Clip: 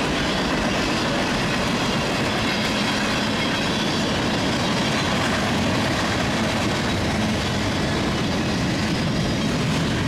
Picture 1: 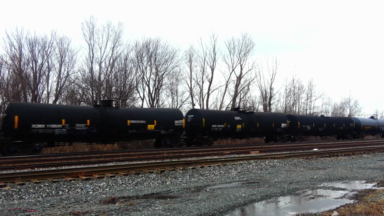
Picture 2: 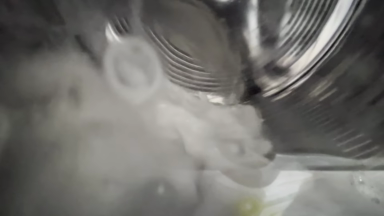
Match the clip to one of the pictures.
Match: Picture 1